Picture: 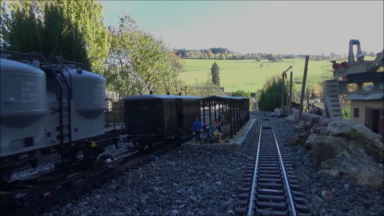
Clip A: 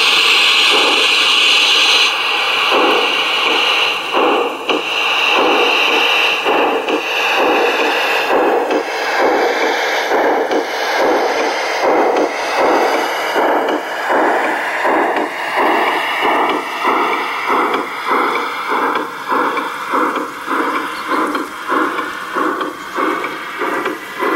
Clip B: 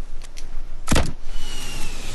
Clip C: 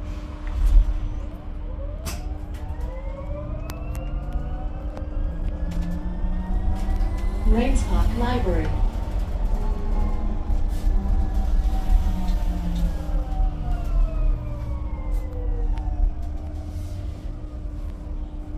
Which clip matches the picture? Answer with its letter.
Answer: A